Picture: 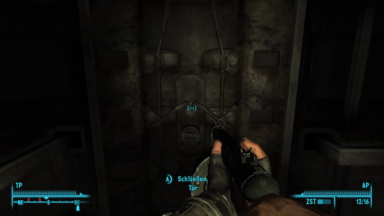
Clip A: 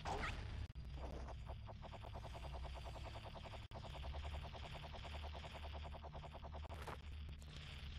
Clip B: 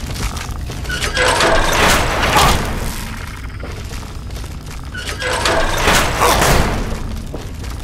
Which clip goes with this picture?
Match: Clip B